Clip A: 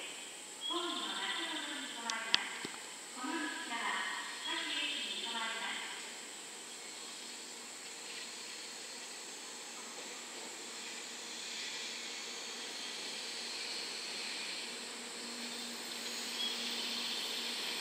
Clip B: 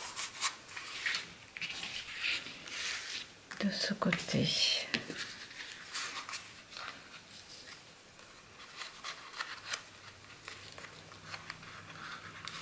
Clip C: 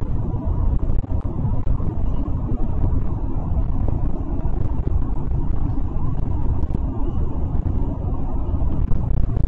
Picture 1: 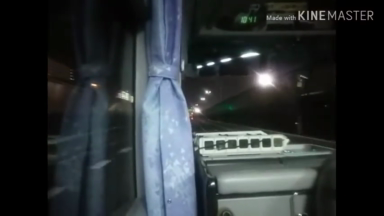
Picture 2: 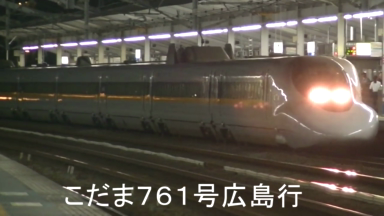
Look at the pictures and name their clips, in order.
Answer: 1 C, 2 A